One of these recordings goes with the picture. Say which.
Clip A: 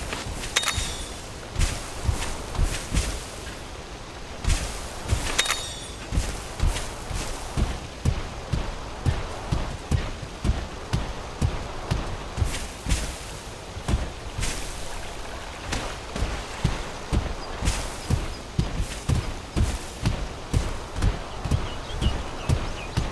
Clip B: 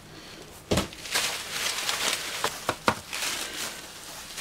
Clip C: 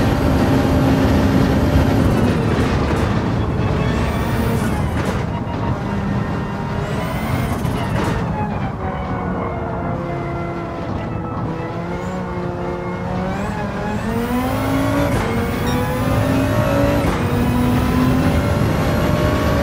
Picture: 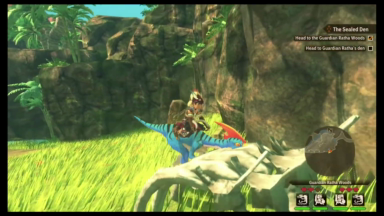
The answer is A